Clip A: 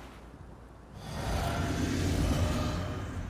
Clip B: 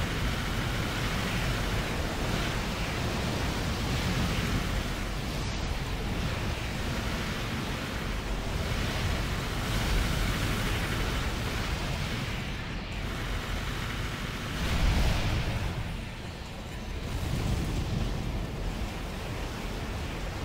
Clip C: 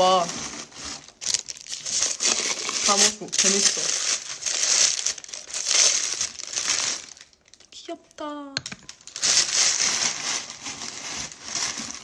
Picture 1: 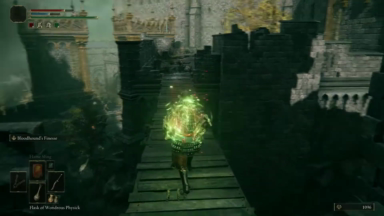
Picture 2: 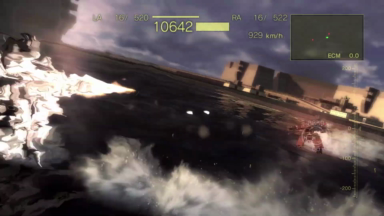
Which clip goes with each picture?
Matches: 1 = A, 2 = B